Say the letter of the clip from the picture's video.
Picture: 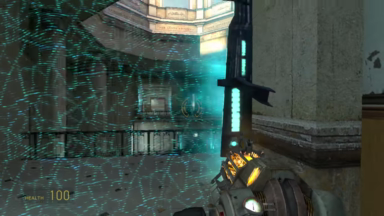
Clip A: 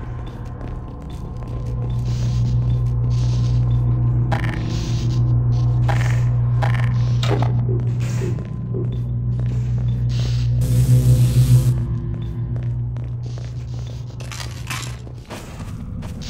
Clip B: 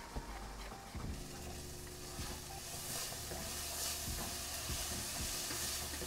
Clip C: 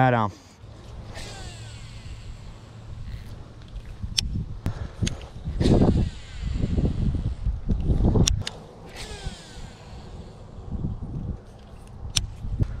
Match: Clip A